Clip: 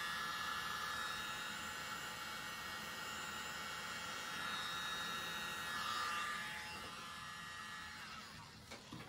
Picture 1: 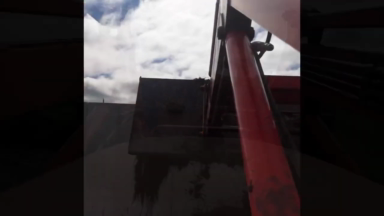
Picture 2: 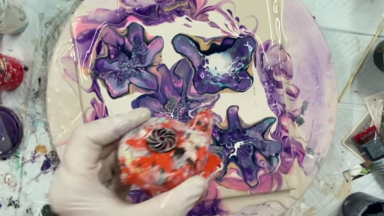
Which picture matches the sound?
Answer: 2